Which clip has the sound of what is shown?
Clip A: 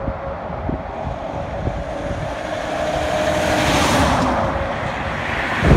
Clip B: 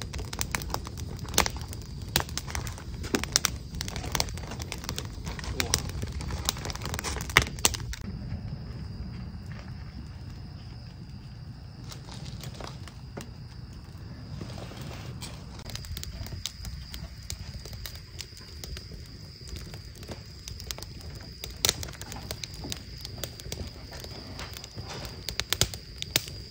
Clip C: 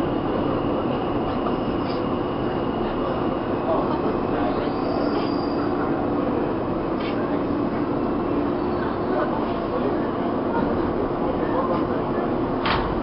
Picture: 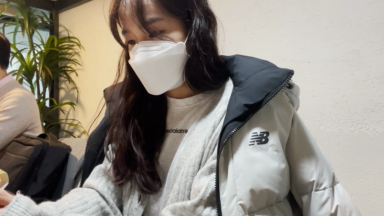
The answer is B